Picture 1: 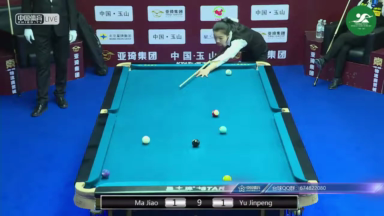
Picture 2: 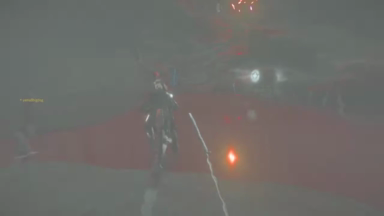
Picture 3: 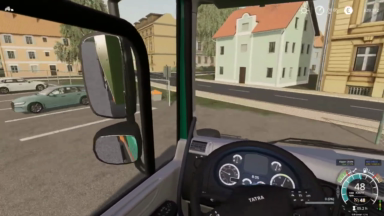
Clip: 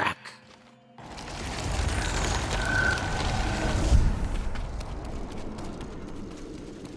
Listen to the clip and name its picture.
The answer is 2